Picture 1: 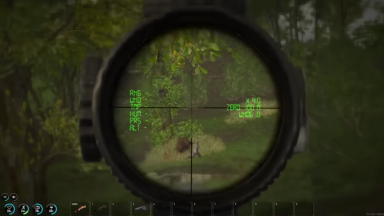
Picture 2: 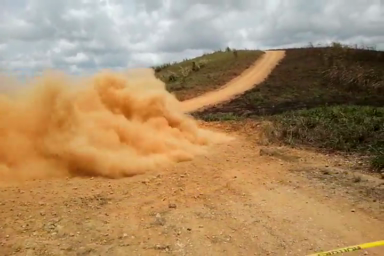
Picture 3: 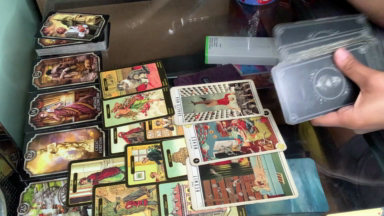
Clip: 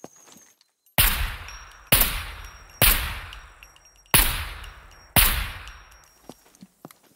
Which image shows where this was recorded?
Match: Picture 1